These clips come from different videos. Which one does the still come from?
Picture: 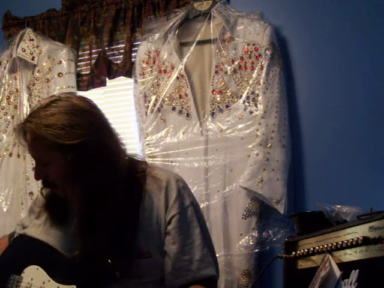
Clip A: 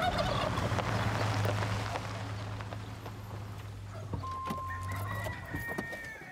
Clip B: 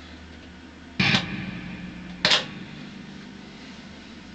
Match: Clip B